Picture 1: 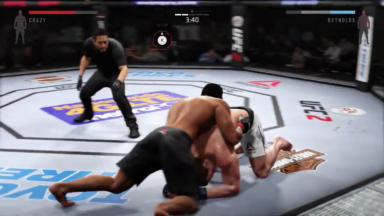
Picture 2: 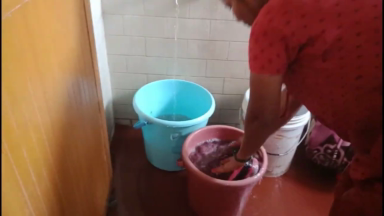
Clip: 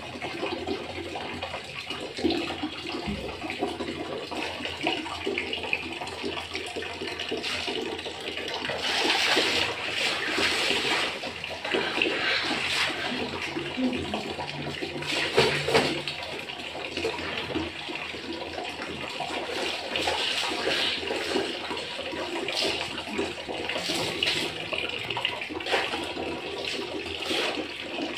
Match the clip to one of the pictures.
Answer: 2